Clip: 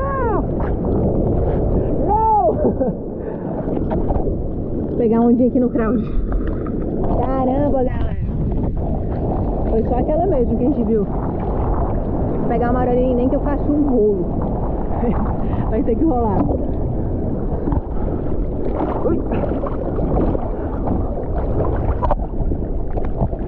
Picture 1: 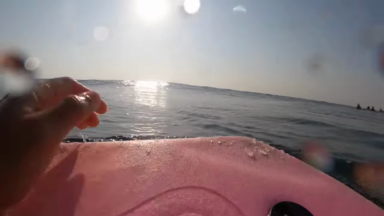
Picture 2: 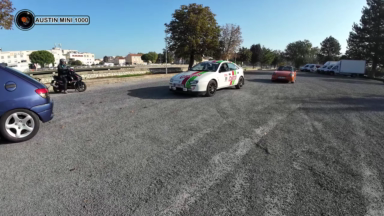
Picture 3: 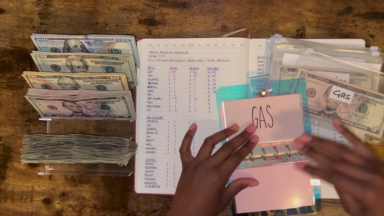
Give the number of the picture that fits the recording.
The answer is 1